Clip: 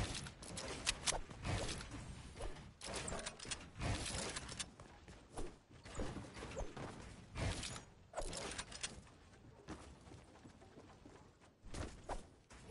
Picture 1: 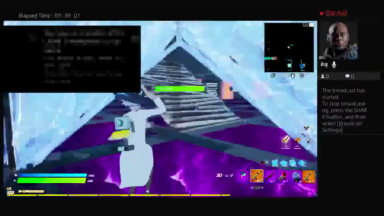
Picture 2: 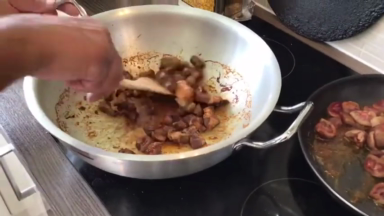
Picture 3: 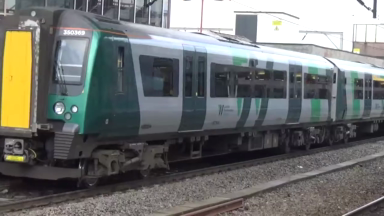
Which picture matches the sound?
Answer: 1